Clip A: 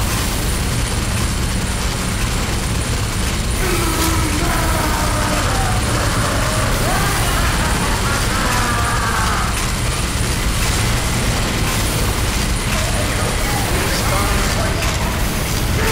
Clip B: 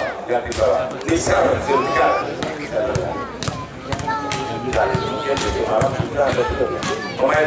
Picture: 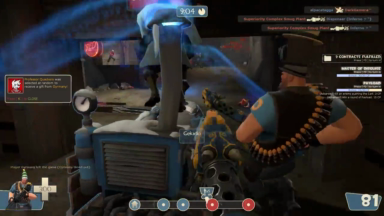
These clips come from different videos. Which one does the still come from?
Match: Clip A